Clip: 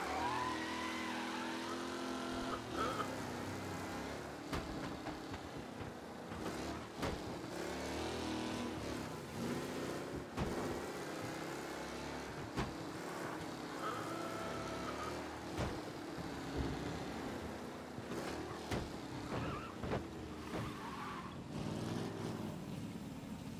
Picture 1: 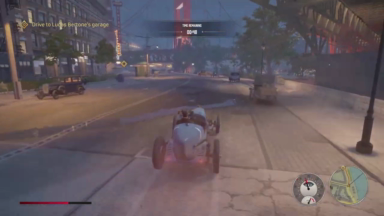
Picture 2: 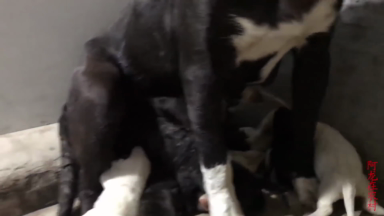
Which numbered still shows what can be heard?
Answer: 1